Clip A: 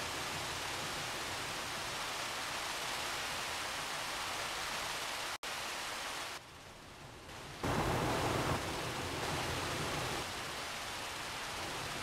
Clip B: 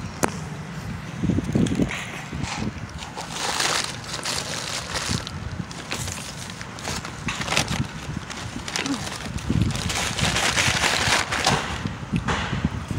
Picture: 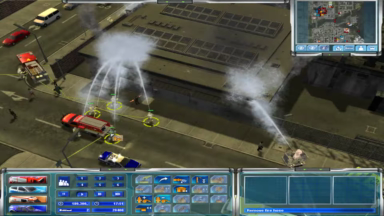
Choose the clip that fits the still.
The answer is A